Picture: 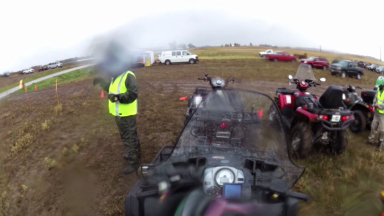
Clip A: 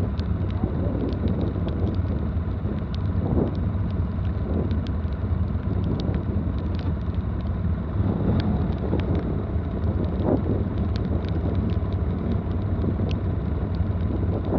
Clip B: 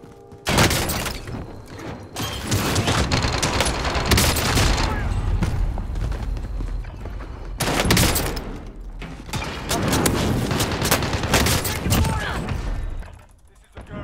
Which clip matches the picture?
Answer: A